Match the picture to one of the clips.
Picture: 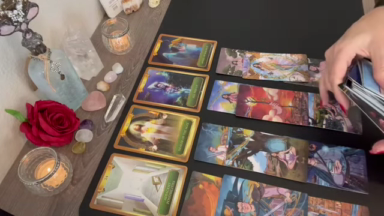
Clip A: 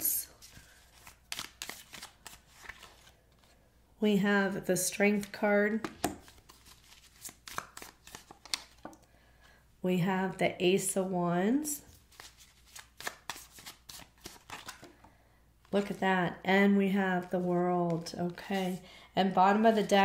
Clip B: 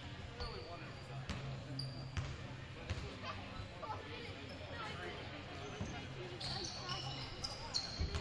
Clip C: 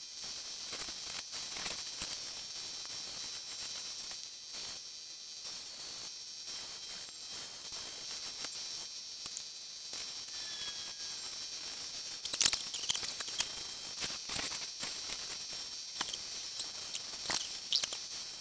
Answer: A